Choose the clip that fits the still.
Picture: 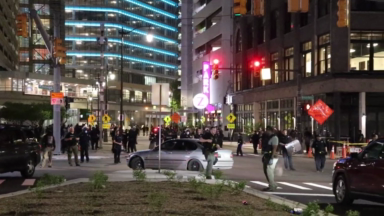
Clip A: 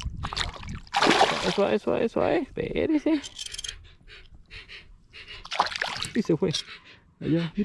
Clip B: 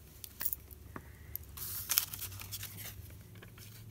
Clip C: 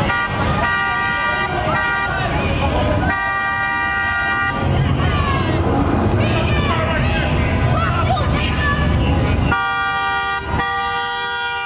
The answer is C